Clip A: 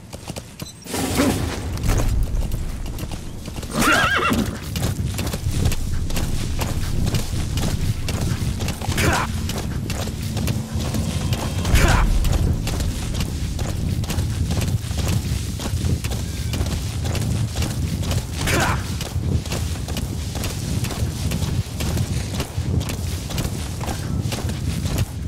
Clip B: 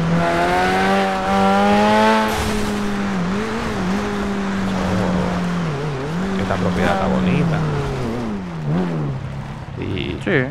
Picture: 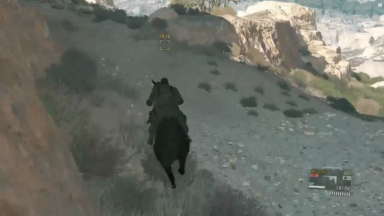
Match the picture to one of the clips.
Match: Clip A